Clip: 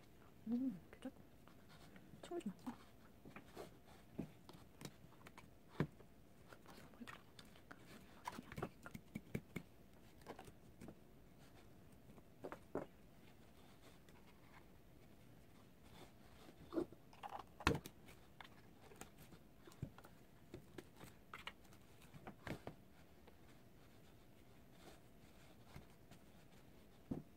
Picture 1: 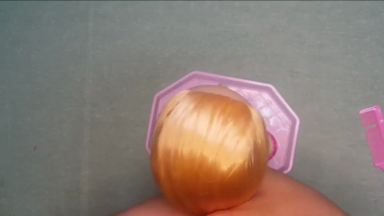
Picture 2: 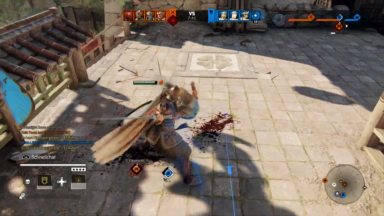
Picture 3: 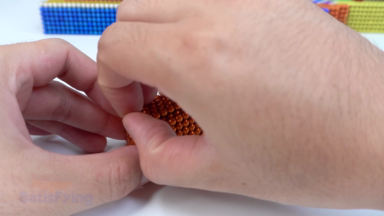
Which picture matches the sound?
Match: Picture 1